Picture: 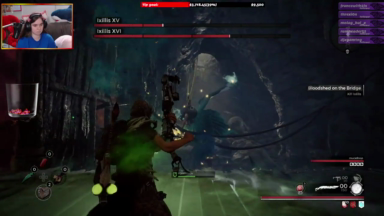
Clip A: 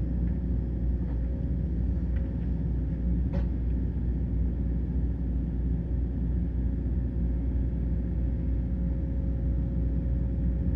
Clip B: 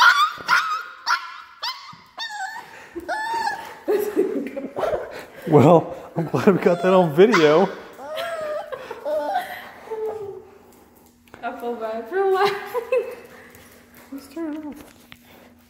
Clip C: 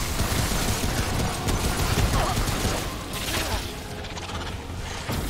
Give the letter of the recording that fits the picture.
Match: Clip C